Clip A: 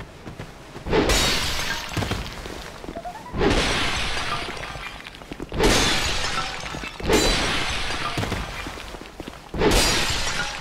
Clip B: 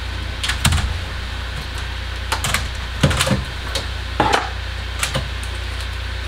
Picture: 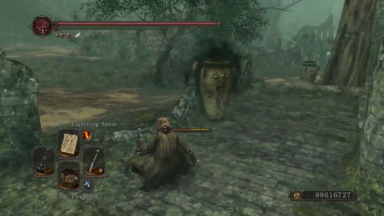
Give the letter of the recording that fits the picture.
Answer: A